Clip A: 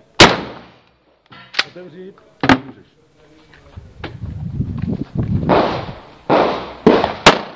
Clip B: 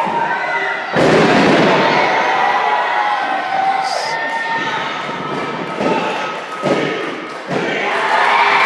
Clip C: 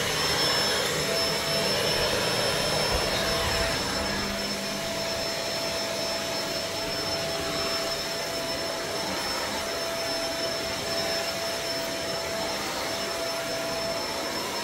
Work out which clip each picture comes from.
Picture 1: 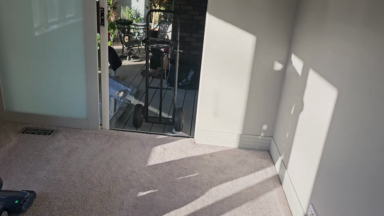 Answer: C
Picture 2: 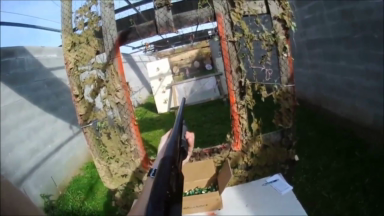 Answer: A